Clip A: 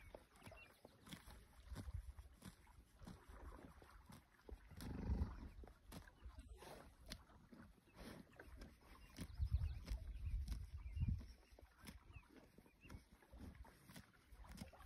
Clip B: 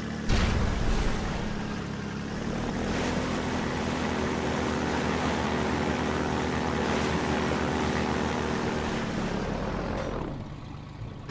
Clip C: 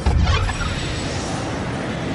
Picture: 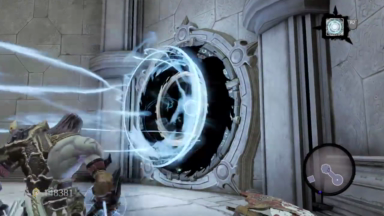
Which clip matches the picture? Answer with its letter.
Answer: C